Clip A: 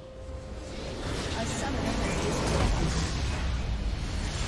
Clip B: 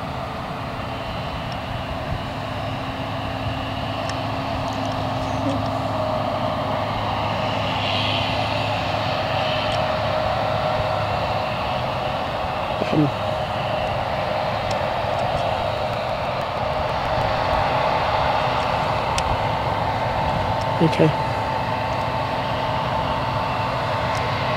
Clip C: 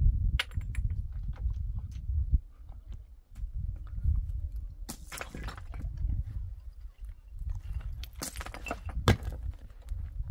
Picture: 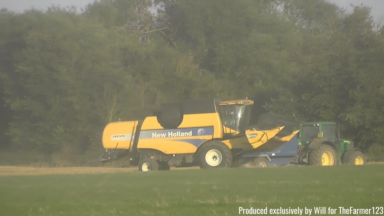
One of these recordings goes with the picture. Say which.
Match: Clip B